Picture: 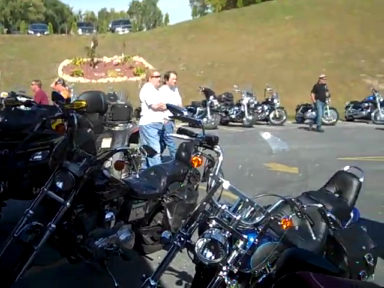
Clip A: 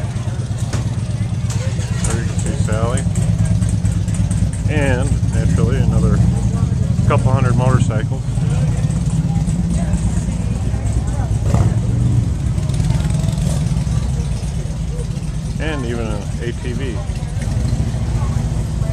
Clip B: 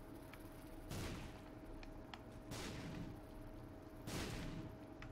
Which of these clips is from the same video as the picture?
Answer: A